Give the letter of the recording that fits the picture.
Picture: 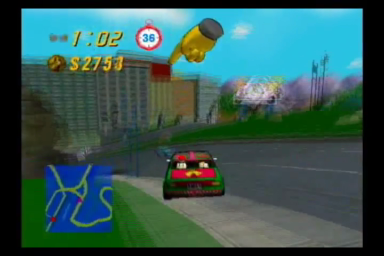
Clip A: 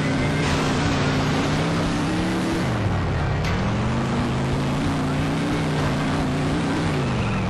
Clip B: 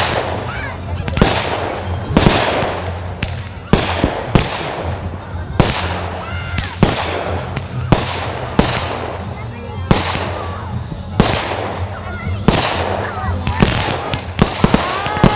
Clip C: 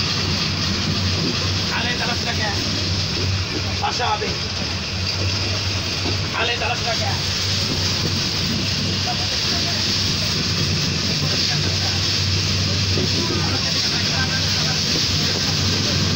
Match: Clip A